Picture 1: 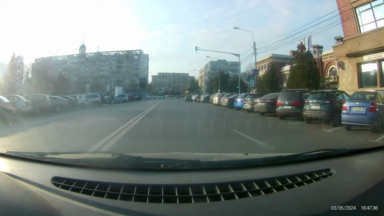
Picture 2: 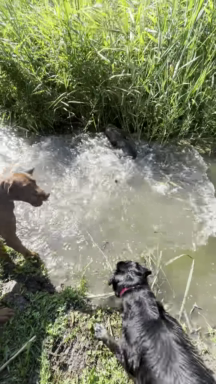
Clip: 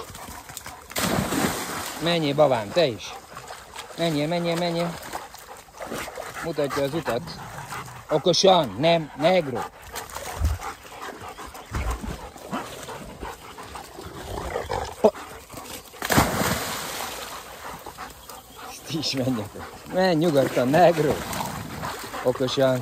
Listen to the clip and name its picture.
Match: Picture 2